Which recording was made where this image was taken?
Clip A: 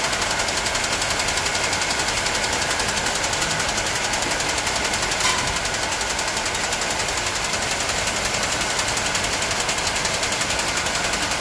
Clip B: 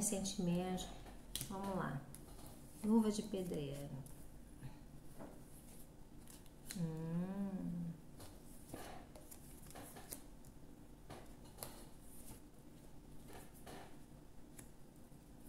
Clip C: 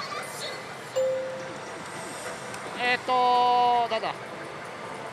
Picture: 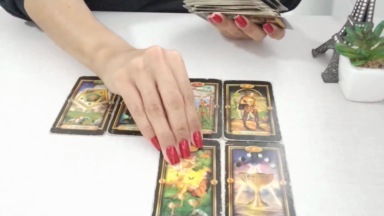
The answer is B